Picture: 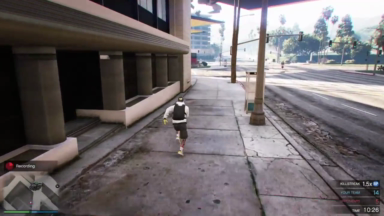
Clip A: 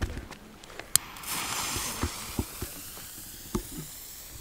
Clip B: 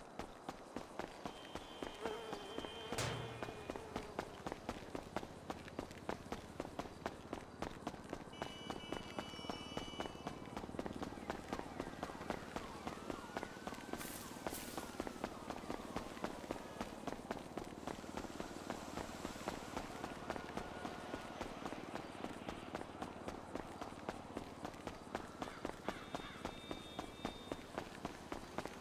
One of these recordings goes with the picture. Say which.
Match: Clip B